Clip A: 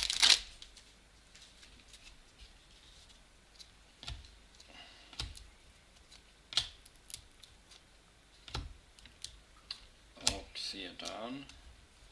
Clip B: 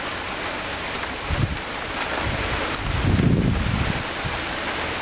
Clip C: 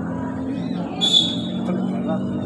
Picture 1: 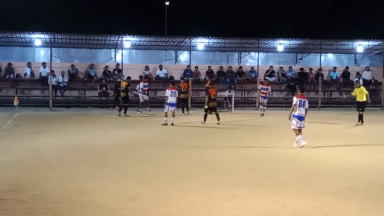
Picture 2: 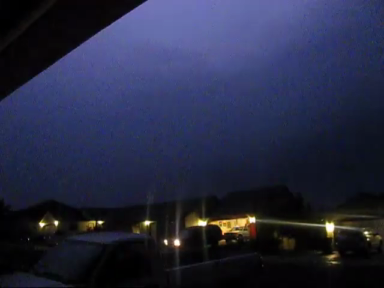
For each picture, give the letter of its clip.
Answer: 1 C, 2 B